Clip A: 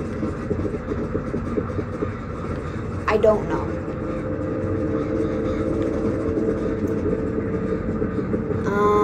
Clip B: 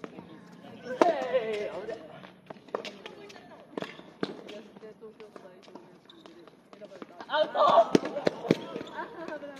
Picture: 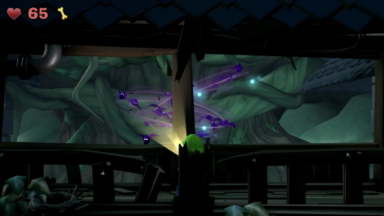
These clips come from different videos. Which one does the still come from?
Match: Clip A